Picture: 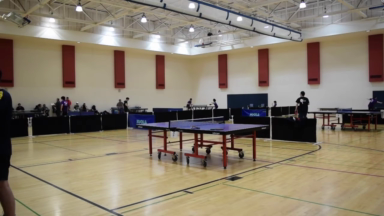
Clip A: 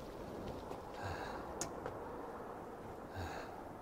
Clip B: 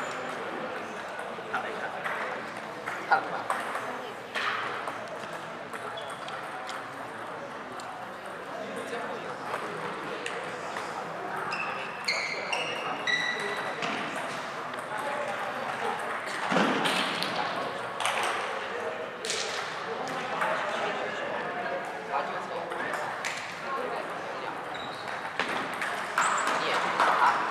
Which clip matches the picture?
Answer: B